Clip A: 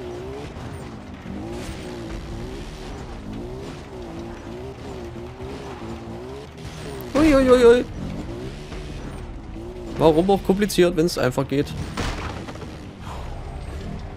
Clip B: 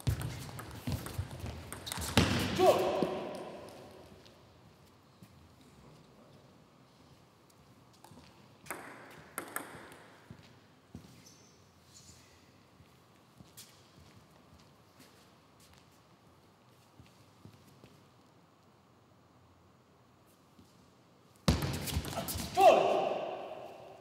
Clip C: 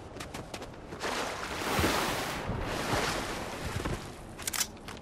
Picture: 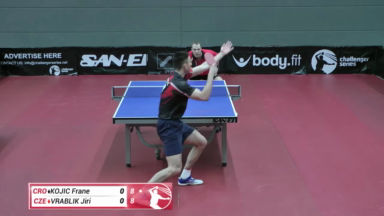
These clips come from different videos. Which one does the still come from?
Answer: B